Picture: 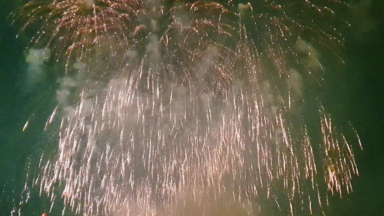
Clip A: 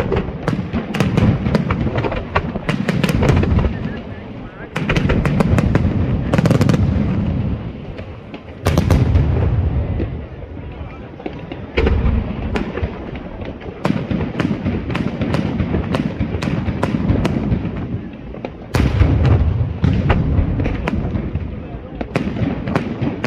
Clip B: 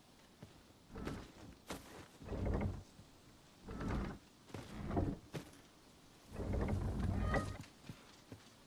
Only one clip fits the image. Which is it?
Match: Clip A